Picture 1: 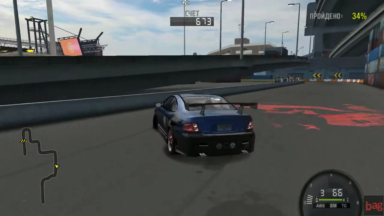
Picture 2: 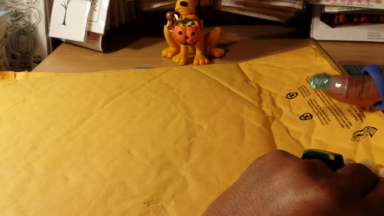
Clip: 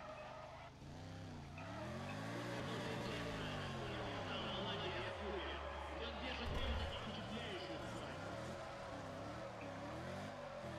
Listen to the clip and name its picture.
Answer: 1